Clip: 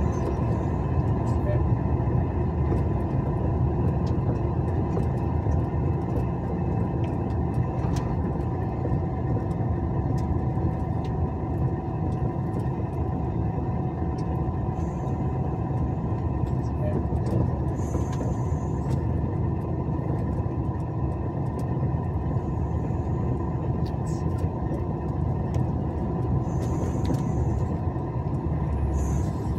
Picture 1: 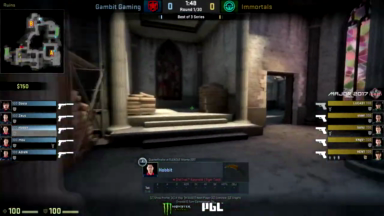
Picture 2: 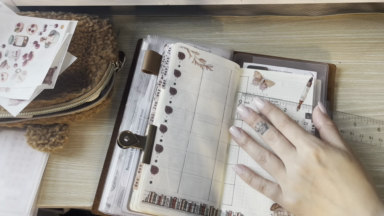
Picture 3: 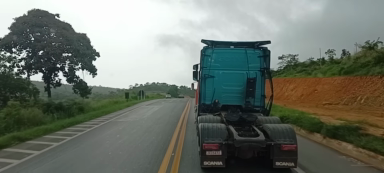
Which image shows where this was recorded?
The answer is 3